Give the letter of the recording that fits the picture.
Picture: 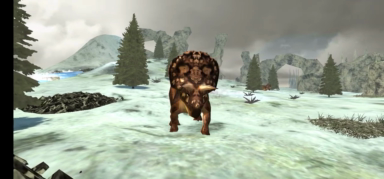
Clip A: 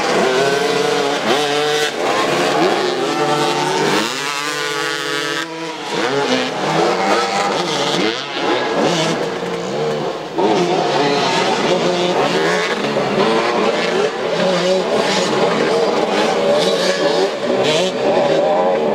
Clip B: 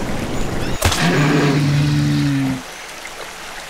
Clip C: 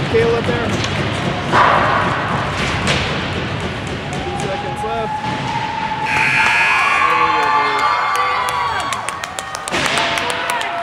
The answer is B